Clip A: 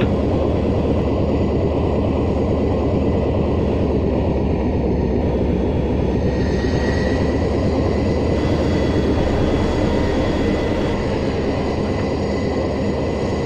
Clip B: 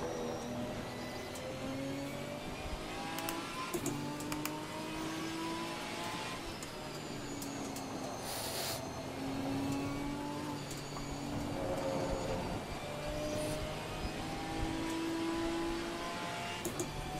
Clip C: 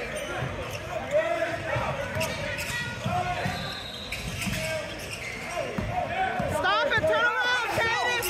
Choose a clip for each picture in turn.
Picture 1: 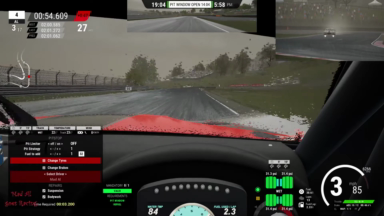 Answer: B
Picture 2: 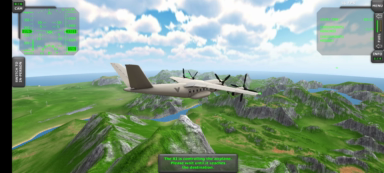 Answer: A